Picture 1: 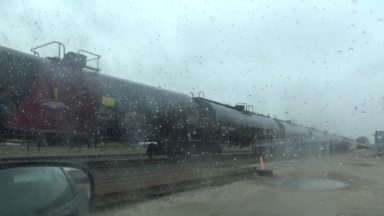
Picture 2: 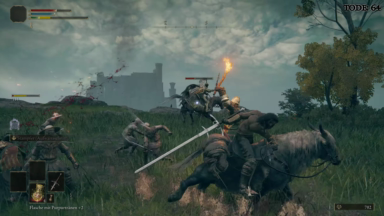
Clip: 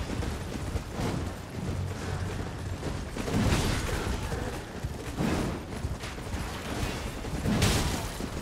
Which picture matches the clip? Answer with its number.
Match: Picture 2